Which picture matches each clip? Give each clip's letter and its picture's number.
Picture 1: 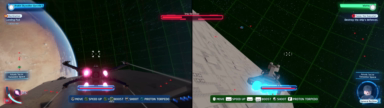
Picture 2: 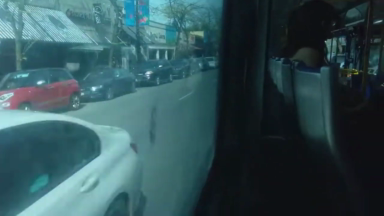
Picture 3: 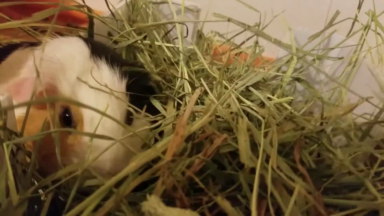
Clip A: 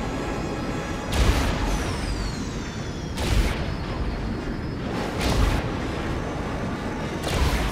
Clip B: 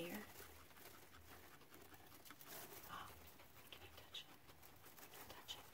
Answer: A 1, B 3